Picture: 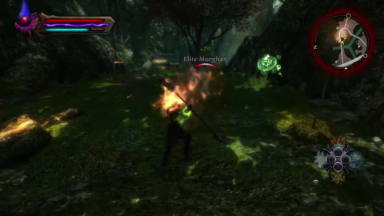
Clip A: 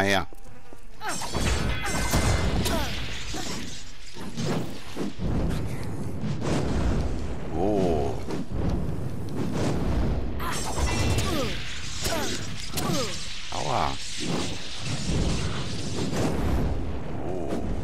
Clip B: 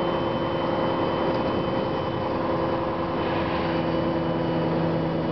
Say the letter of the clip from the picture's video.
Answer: A